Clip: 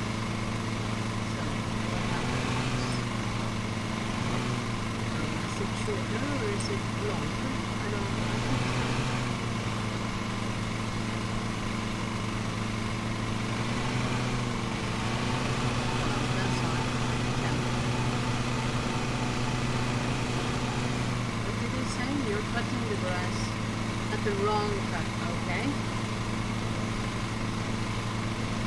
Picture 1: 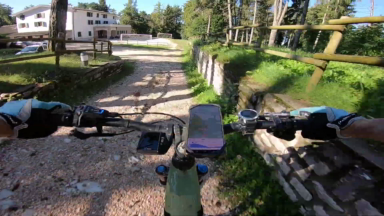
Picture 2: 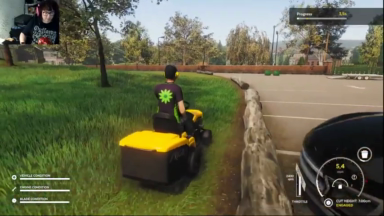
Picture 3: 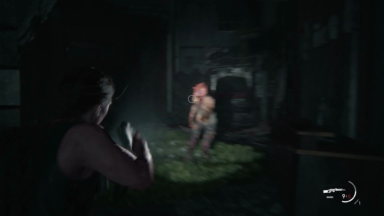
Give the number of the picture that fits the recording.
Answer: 2